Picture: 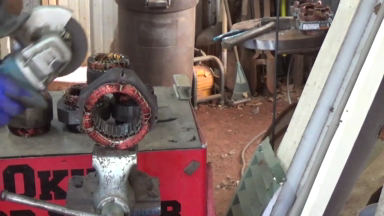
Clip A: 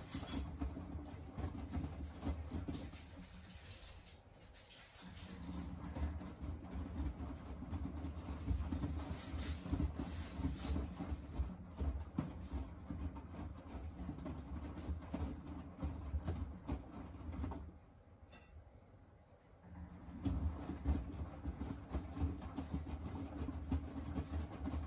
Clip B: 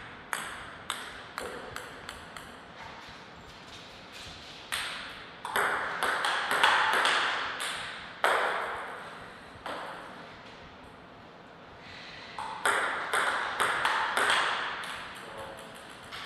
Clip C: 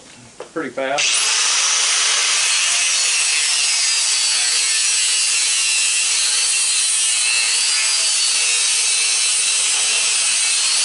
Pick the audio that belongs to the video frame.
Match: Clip C